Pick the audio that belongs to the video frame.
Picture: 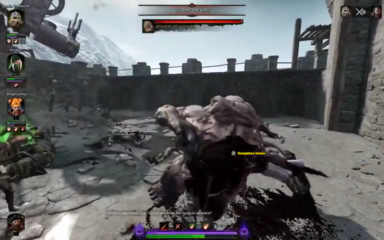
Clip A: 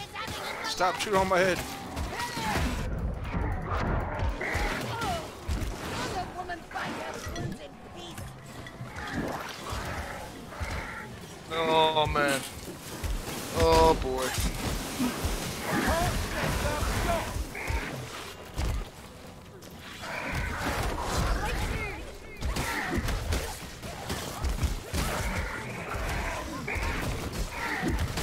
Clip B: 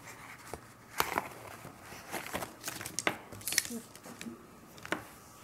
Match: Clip A